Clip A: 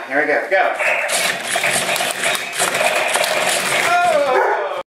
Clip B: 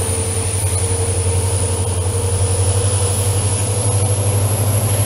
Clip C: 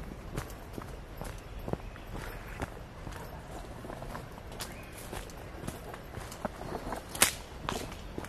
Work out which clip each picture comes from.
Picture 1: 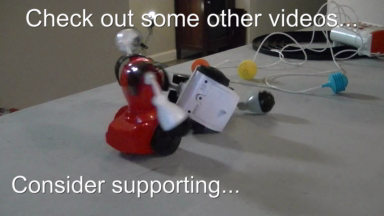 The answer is A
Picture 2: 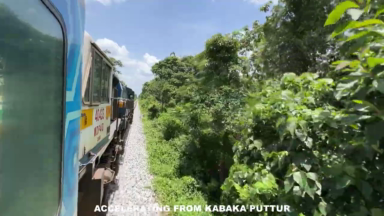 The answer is B